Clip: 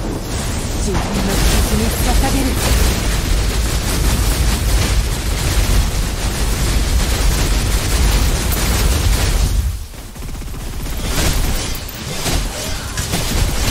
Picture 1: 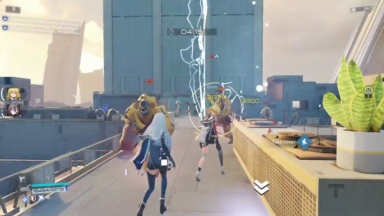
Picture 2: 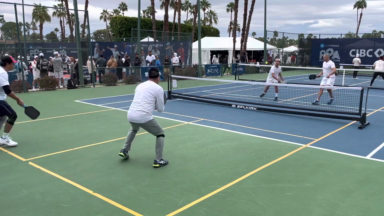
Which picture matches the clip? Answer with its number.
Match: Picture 1